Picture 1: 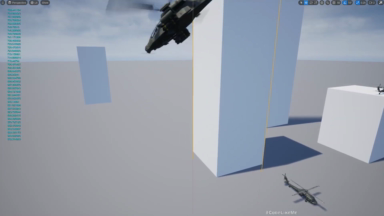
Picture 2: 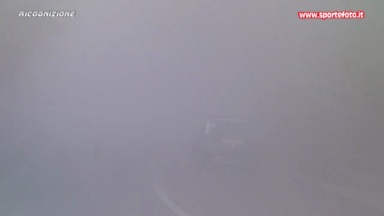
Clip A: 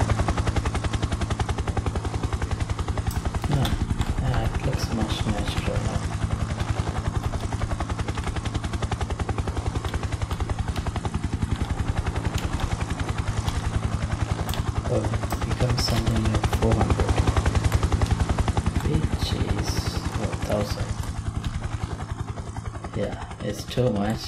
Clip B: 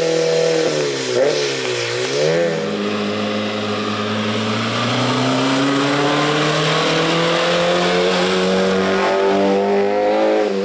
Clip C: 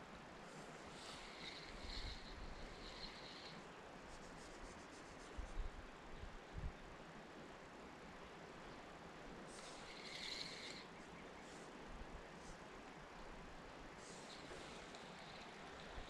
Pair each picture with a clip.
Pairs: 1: A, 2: B